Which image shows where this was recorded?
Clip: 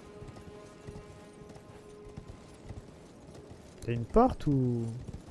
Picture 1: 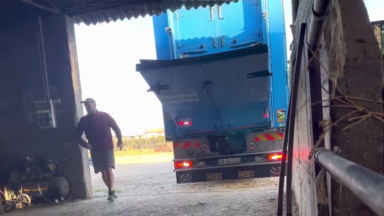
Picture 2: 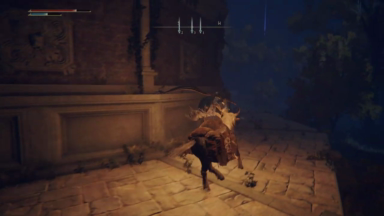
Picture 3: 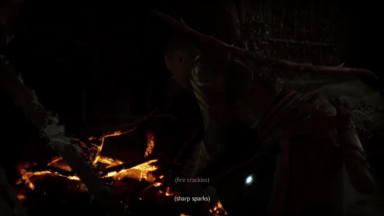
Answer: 2